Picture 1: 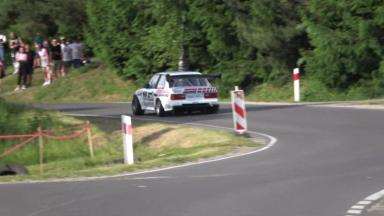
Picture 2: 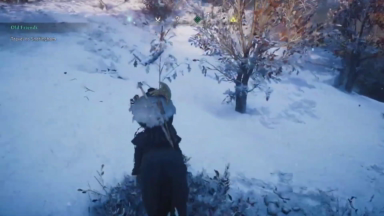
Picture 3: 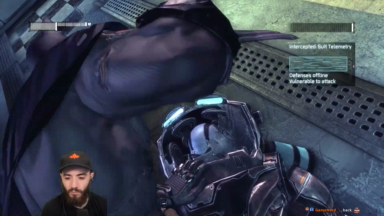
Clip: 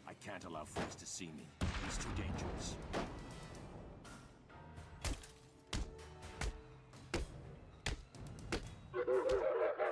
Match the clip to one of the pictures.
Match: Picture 3